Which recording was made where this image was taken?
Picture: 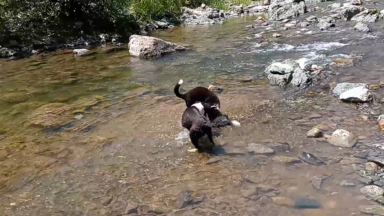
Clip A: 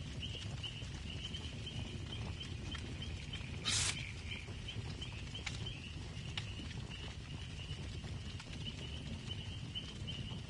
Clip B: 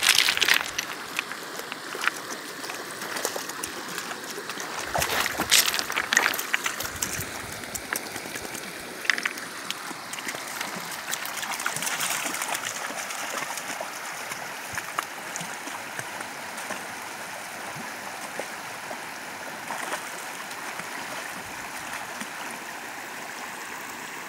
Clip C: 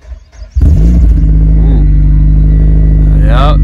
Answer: B